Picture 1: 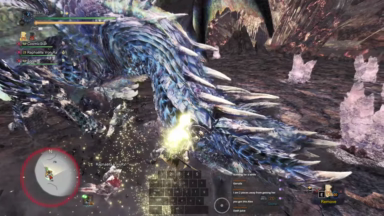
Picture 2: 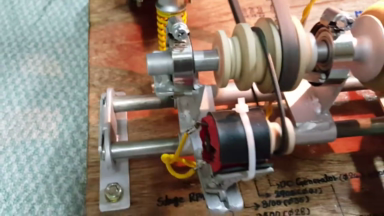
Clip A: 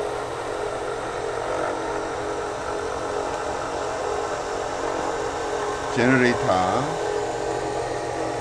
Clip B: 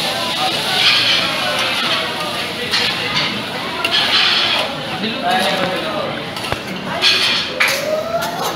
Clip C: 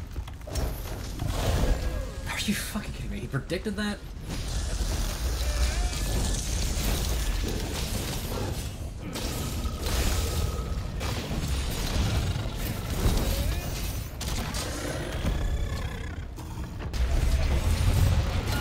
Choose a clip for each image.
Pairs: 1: C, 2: A